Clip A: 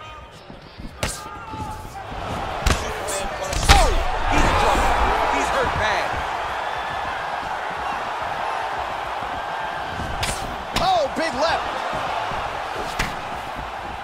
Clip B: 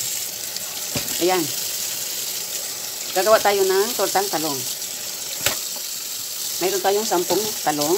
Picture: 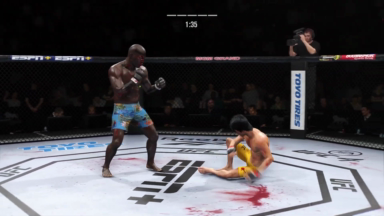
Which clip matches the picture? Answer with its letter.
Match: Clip A